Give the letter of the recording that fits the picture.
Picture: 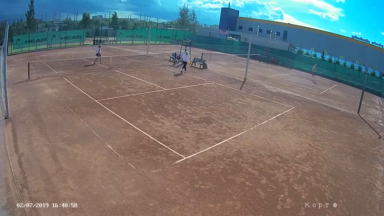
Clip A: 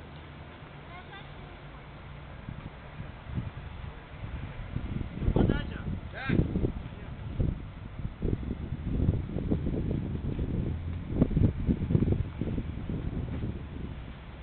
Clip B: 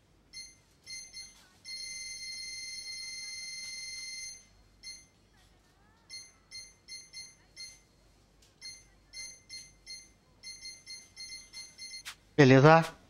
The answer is A